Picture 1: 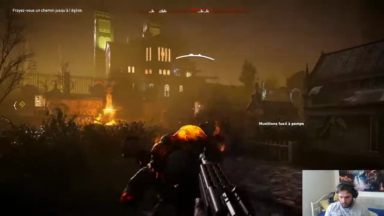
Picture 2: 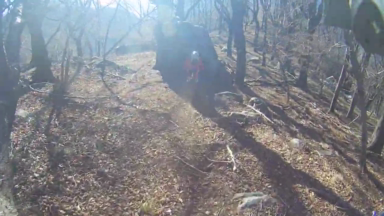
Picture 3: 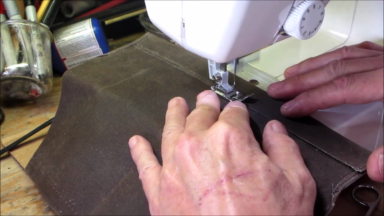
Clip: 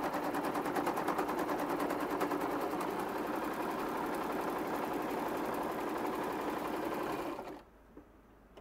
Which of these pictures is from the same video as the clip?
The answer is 3